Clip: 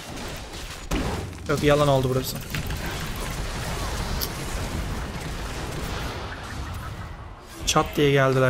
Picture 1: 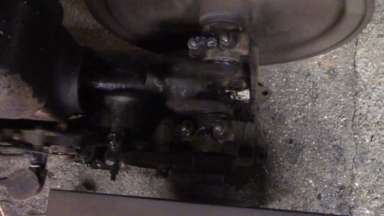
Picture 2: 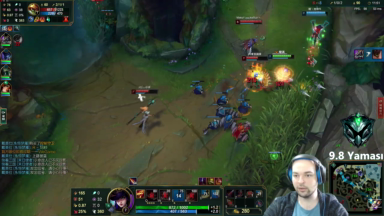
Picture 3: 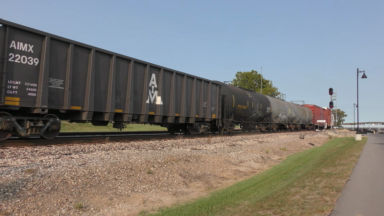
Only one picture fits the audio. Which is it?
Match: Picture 2